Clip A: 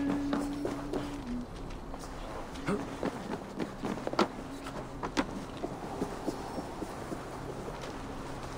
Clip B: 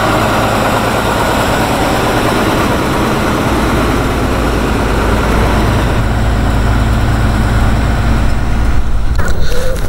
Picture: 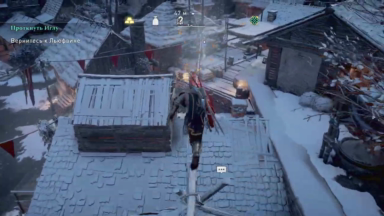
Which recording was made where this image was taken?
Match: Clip A